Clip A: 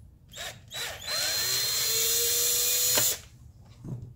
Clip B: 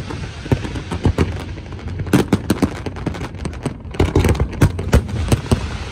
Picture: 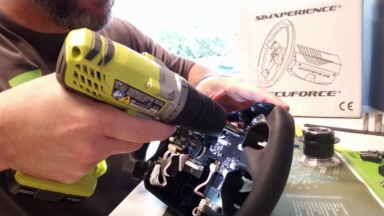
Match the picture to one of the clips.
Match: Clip A